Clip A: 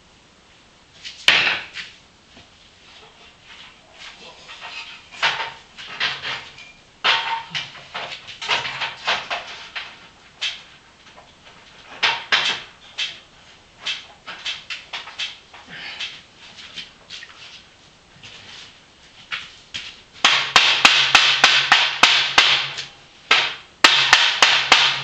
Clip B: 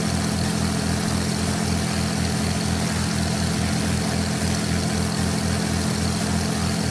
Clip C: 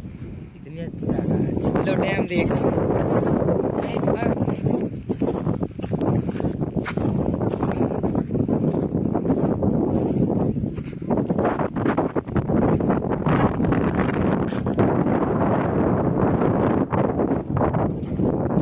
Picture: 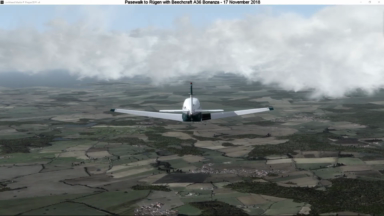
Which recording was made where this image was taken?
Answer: B